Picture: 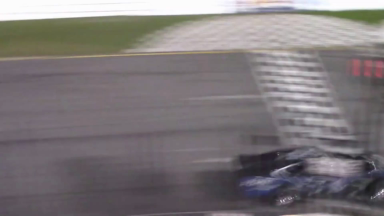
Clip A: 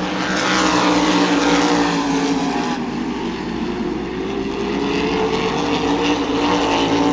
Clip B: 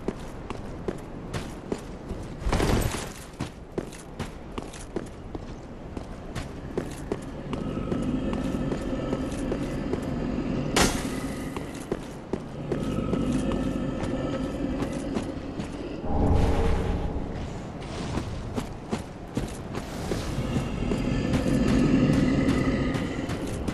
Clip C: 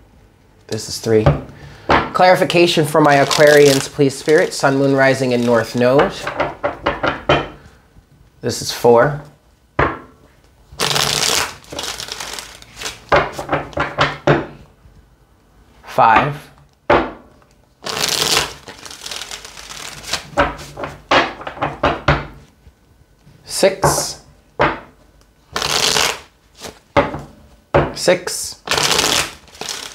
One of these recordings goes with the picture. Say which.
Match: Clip A